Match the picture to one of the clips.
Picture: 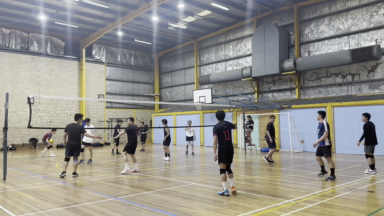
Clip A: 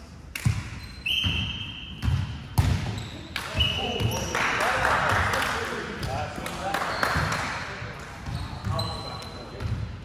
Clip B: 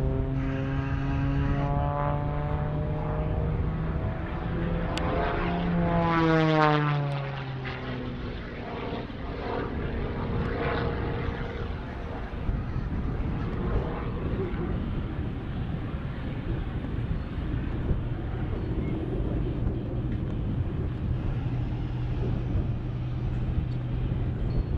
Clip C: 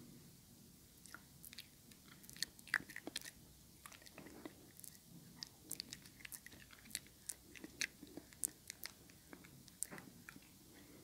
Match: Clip A